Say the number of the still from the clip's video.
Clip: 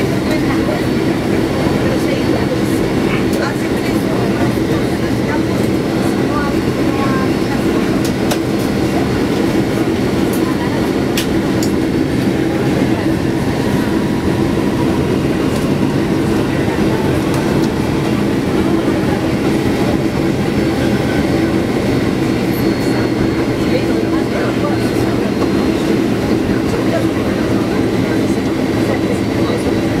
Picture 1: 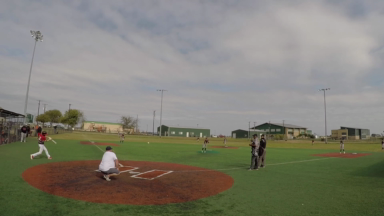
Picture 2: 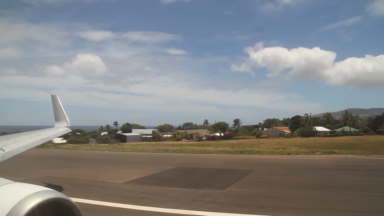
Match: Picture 2